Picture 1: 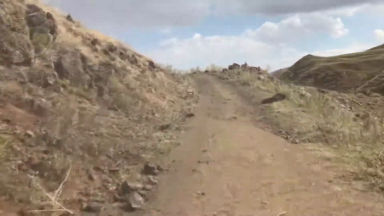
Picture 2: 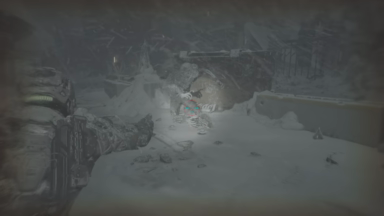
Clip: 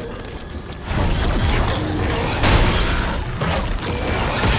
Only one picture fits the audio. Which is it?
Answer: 2